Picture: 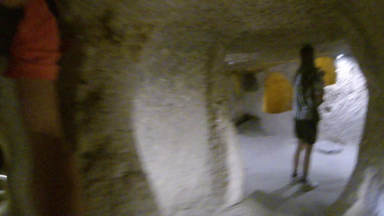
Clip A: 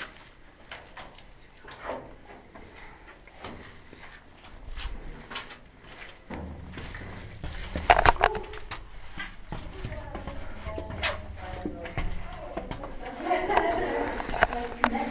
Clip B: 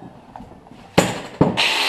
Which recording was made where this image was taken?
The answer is A